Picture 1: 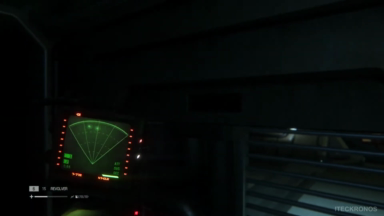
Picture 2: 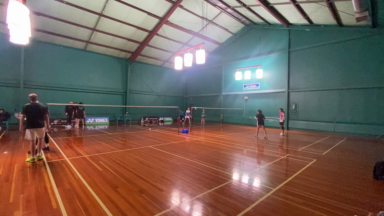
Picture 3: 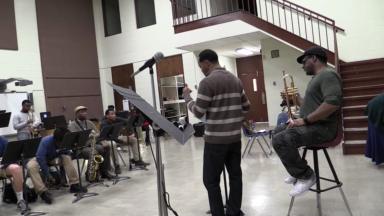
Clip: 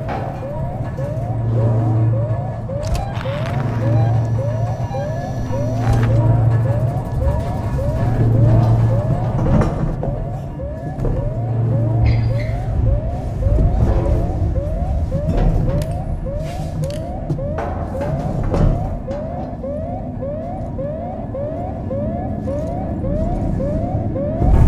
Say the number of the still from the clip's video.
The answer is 1